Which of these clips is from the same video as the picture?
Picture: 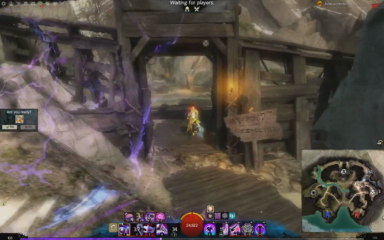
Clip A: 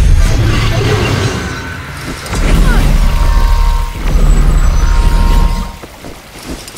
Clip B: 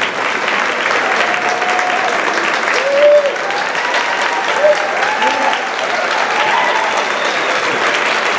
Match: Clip A